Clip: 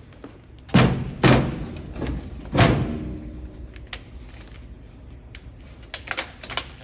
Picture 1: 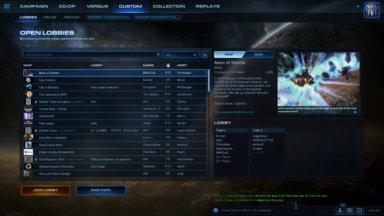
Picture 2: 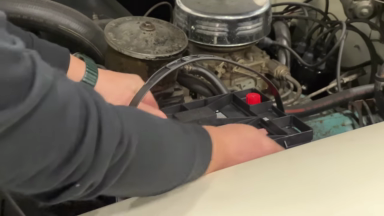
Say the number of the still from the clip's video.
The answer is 2